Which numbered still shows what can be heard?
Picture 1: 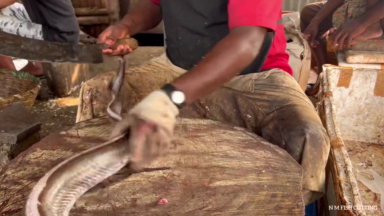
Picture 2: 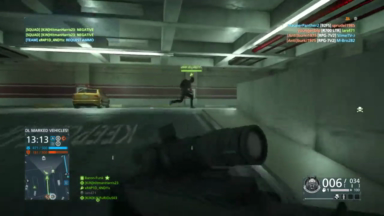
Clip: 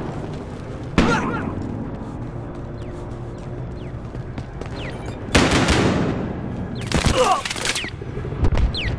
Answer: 2